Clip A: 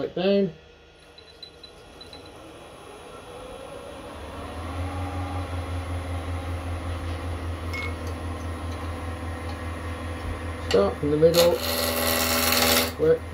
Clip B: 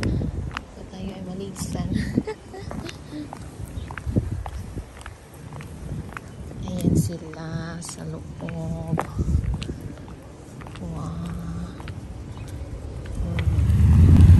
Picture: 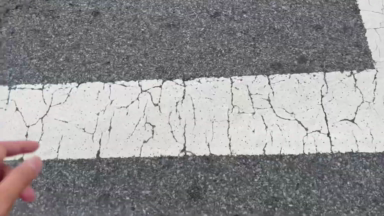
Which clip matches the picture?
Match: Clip B